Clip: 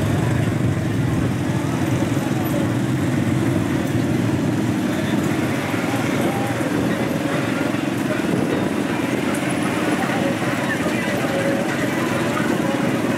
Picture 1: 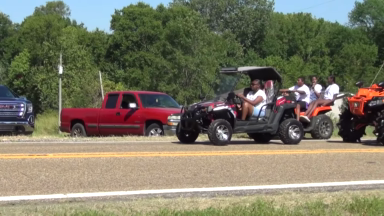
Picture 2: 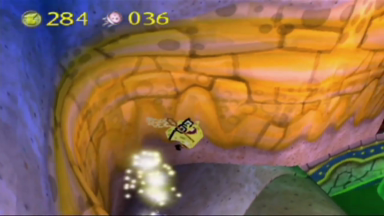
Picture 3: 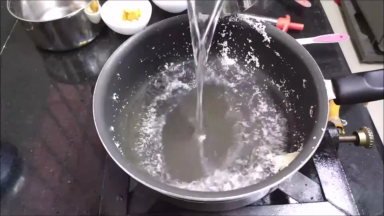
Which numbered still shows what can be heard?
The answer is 1